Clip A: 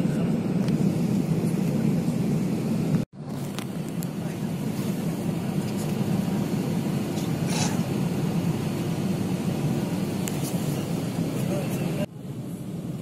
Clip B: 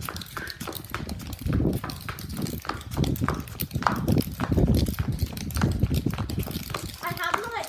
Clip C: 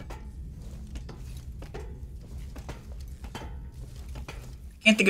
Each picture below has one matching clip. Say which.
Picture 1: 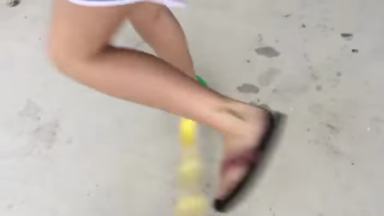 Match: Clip B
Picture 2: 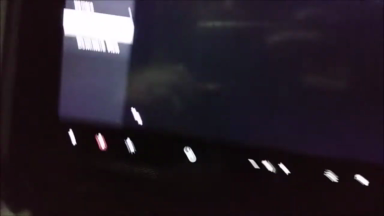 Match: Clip A